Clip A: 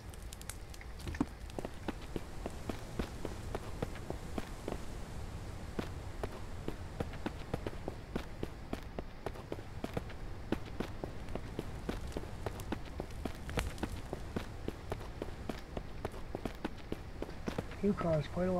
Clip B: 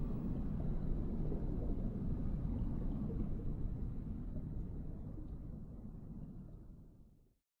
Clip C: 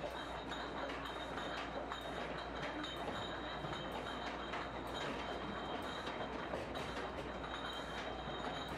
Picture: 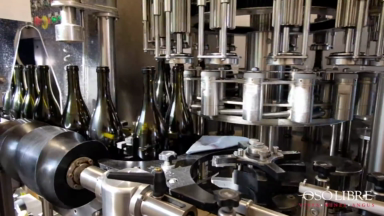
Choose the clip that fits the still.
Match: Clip C